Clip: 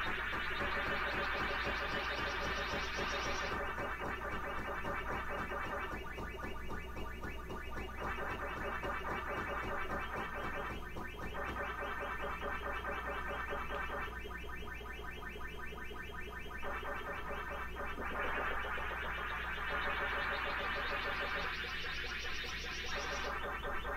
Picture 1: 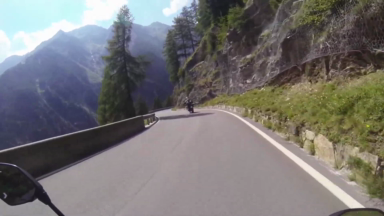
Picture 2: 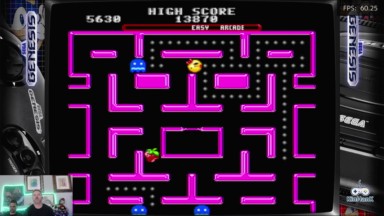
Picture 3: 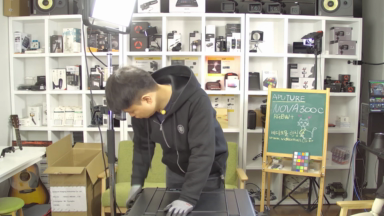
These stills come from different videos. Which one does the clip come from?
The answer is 2